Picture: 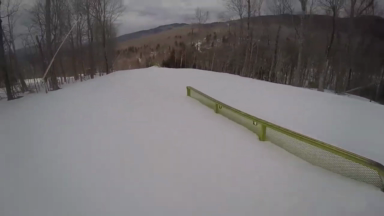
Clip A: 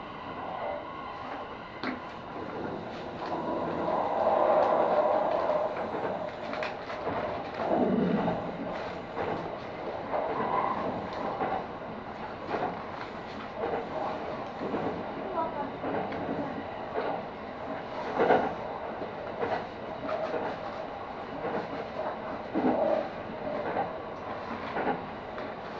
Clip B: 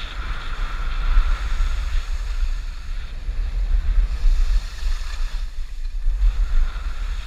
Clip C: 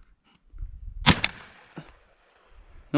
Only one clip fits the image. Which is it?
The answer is B